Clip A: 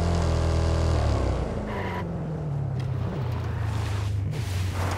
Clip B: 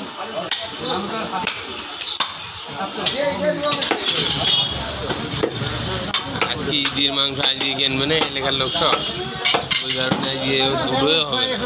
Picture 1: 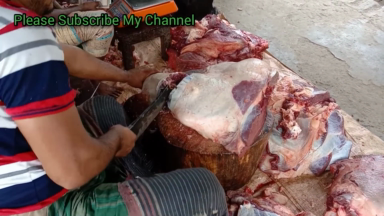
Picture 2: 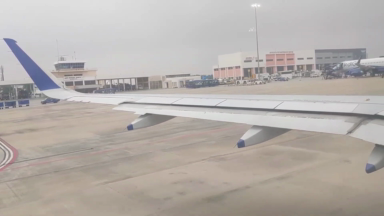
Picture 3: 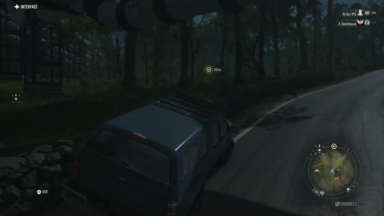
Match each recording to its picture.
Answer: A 3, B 1